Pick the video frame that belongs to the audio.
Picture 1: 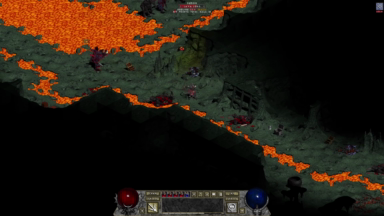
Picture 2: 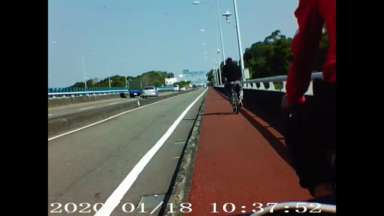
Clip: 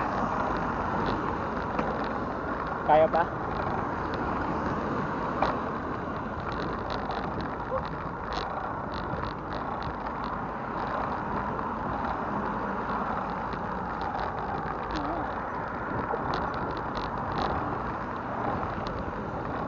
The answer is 2